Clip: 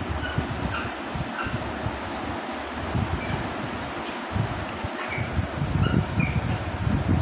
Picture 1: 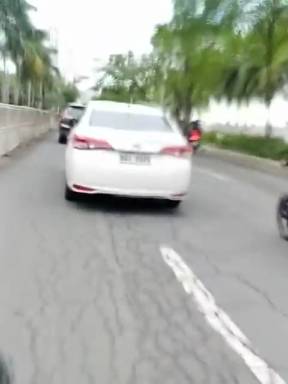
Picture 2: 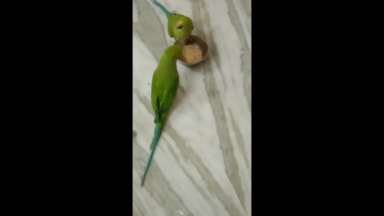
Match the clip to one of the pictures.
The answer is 2